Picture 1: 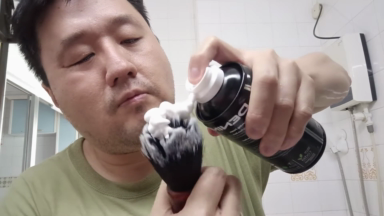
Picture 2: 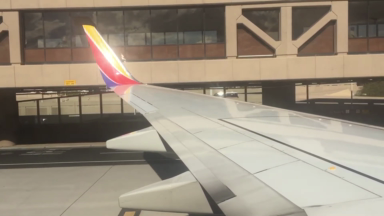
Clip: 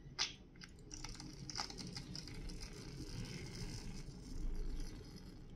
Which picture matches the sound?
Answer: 1